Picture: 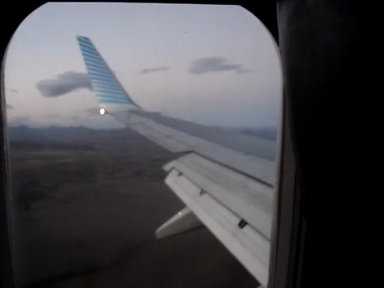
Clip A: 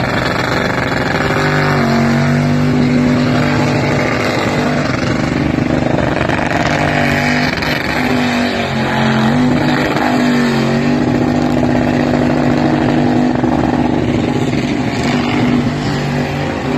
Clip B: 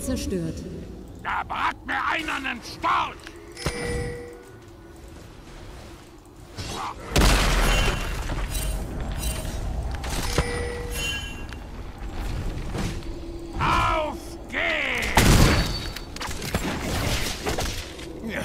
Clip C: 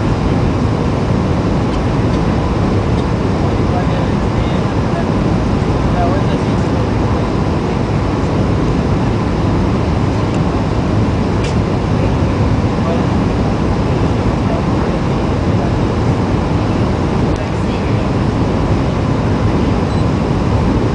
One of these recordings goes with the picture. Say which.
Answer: C